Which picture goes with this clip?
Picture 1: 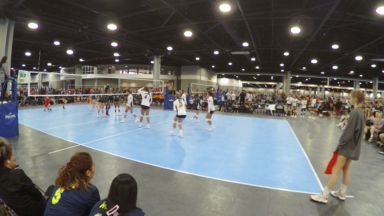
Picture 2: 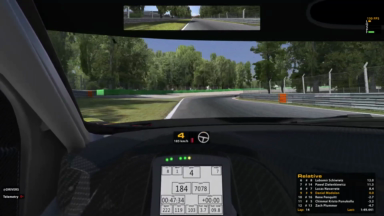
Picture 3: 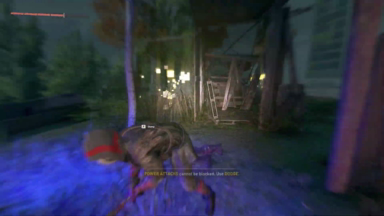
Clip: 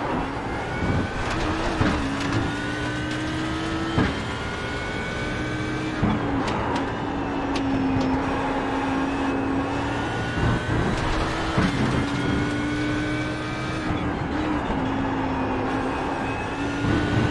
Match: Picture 2